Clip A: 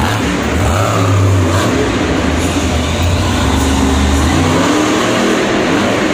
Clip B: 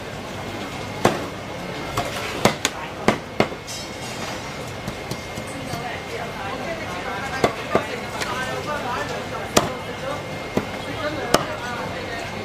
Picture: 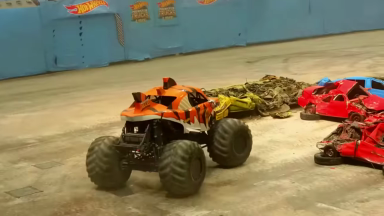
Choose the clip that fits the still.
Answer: A